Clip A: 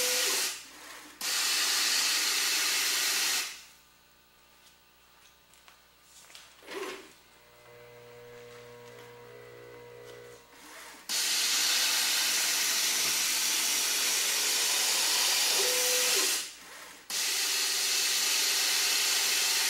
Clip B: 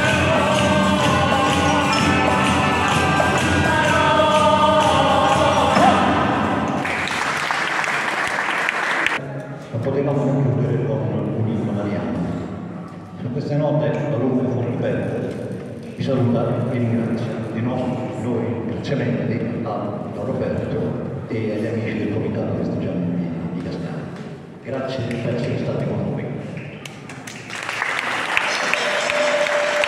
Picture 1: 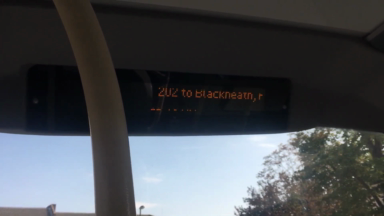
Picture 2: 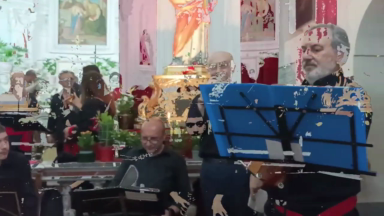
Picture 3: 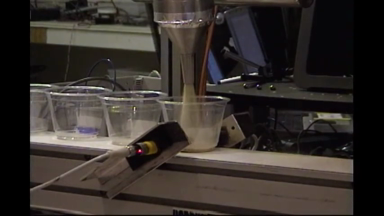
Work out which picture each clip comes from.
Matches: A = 3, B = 2